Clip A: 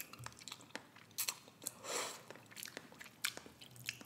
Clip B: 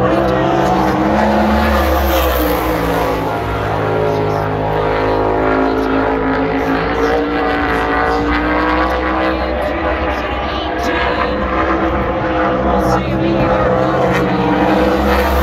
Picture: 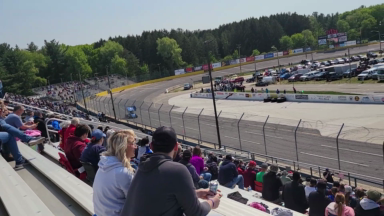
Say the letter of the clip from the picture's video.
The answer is B